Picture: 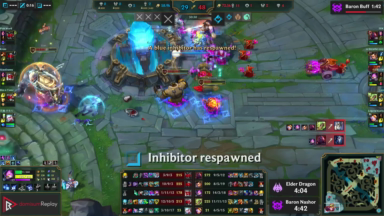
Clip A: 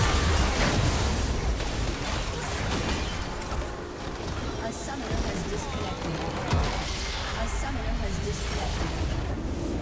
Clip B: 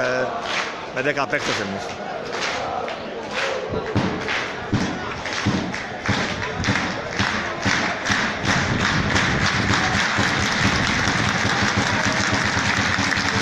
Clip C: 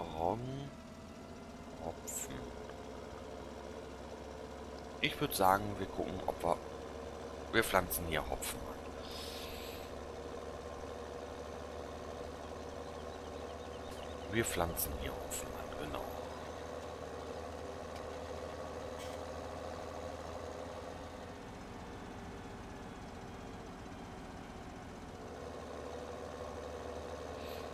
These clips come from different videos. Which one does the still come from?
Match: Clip A